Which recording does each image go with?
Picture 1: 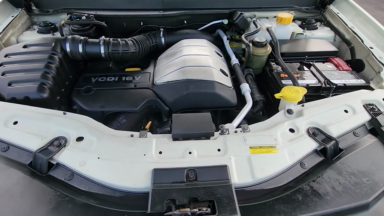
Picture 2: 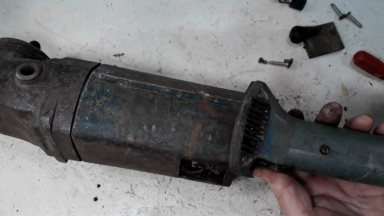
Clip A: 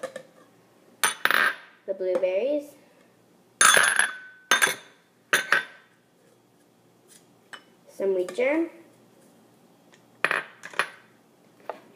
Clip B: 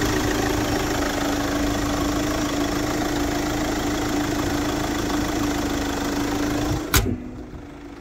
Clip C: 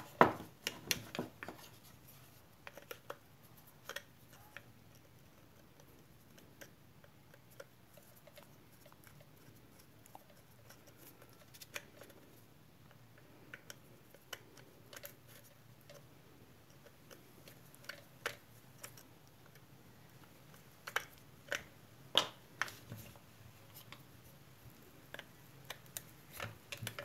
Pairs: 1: B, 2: C